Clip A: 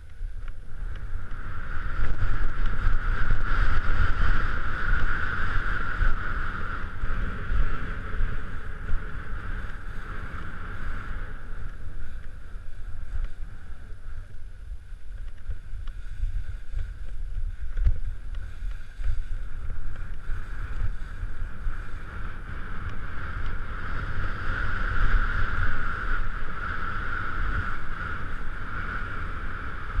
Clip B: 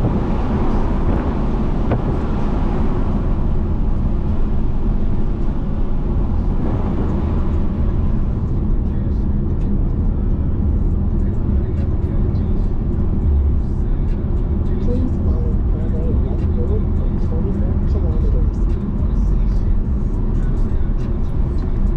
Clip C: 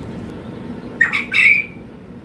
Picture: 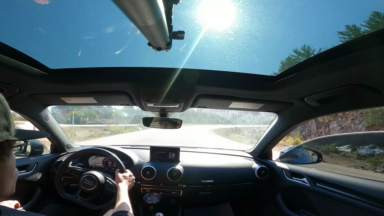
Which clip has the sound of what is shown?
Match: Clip B